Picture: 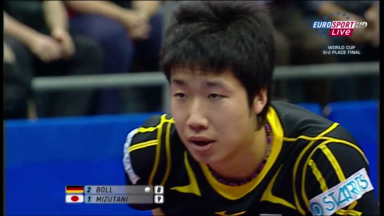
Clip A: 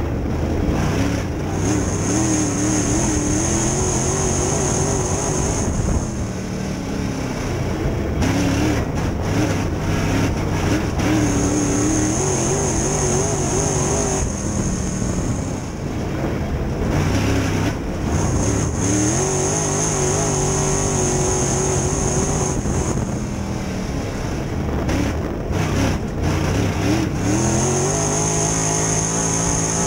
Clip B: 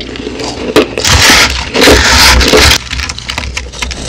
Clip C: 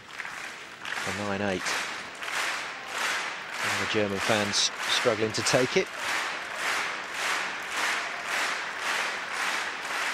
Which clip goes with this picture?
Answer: C